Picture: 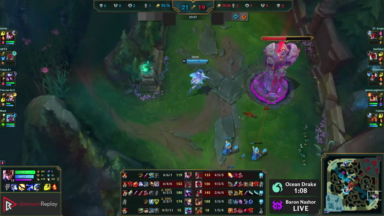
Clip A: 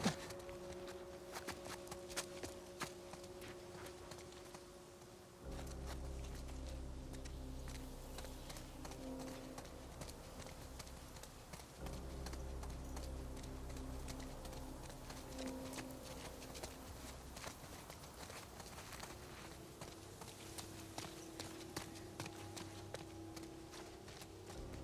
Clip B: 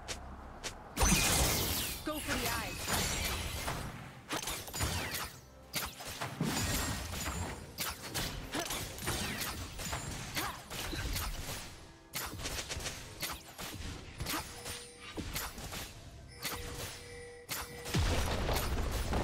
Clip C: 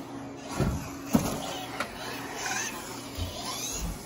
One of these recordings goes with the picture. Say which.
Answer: B